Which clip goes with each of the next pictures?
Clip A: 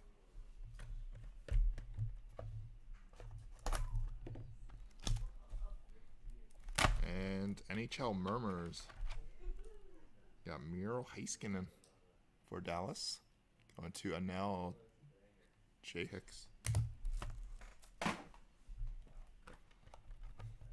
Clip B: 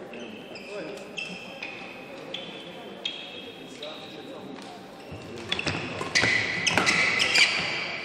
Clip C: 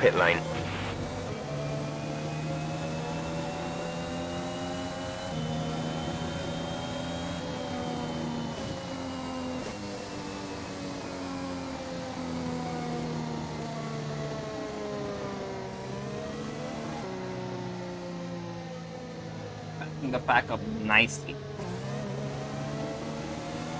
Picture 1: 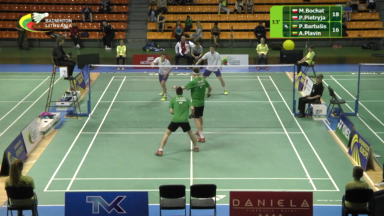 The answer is B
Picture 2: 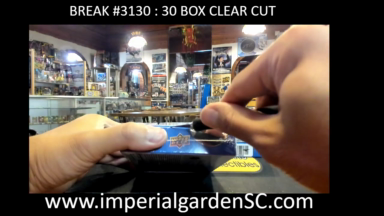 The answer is A